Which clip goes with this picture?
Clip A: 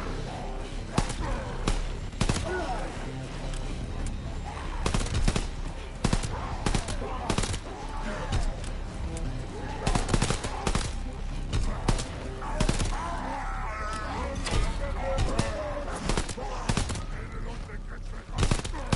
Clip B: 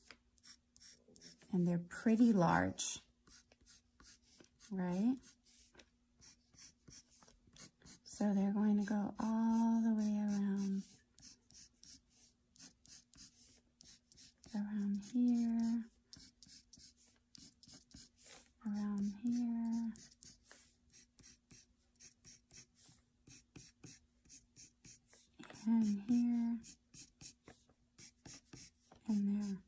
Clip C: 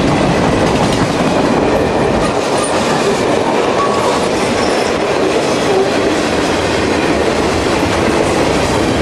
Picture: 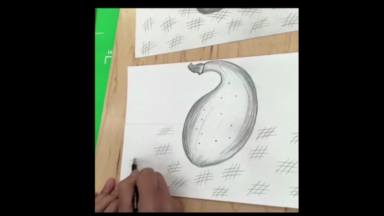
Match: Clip B